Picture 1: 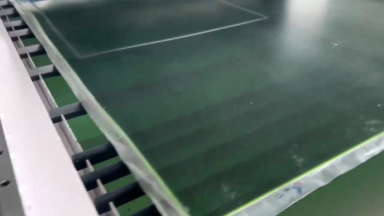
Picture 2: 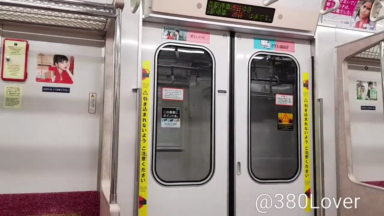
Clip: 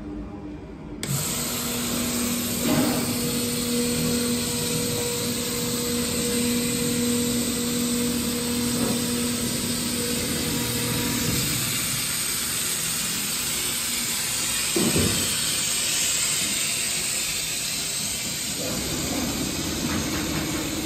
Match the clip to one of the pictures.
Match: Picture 1